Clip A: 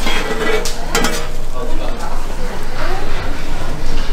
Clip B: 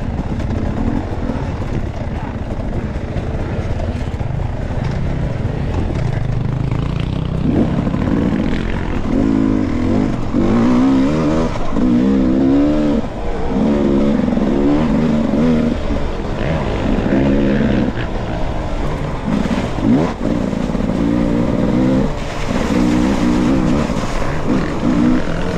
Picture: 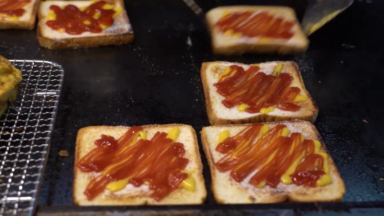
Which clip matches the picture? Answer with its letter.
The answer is A